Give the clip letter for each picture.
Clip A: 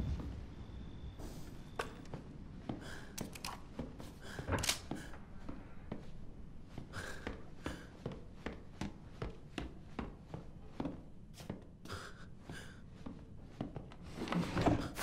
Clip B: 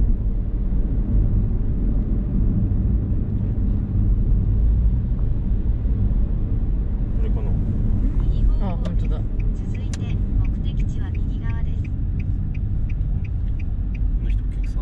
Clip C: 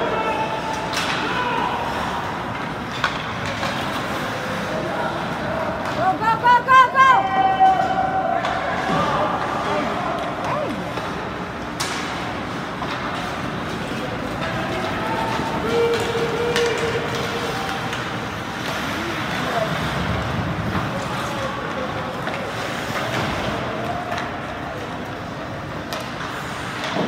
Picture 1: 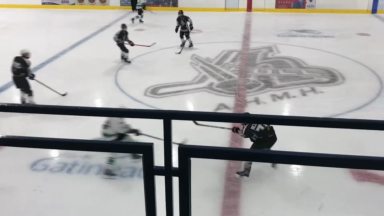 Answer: C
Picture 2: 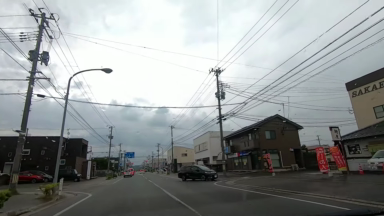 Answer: B